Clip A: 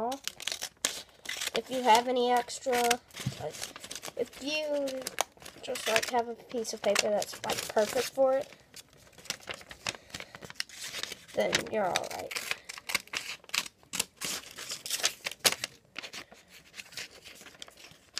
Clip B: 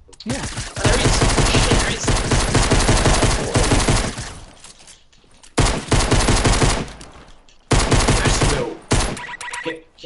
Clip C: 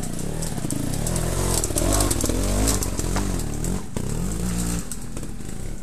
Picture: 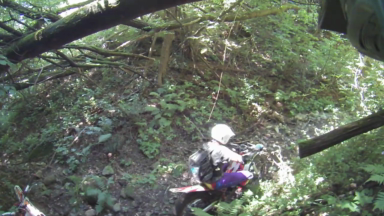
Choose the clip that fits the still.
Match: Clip C